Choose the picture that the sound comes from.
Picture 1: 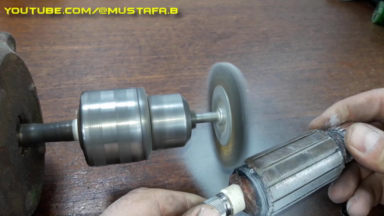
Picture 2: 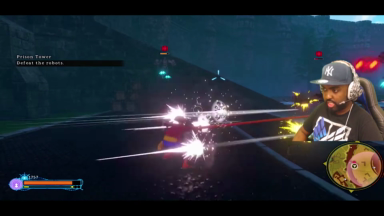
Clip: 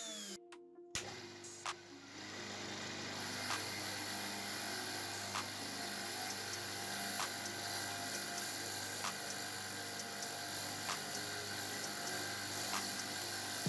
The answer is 1